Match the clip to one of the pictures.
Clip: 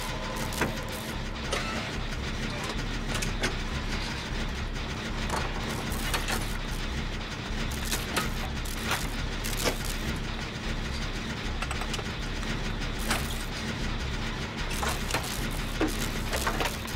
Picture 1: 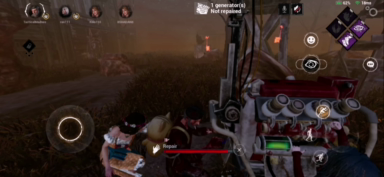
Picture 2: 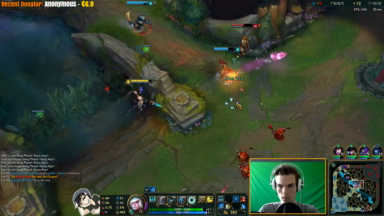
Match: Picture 1